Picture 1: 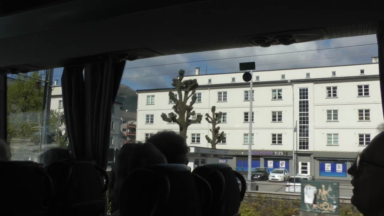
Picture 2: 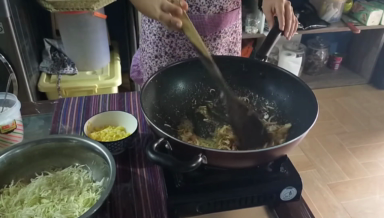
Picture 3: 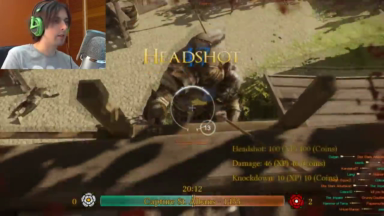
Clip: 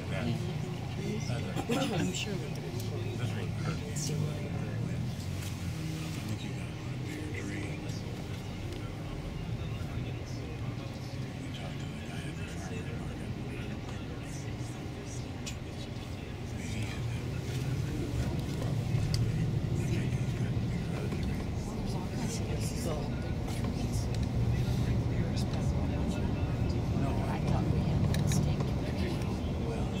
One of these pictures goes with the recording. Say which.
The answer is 1